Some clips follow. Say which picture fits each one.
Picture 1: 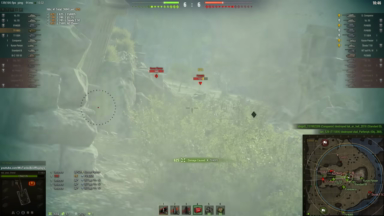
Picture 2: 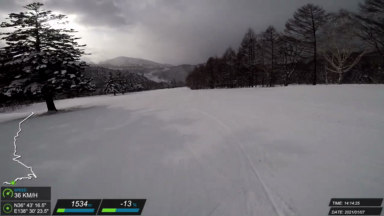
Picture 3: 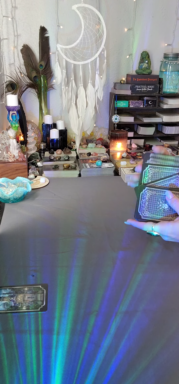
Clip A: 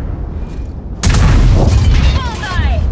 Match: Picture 1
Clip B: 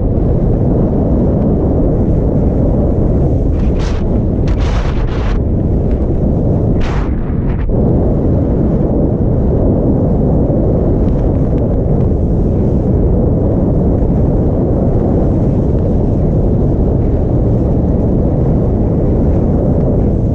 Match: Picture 2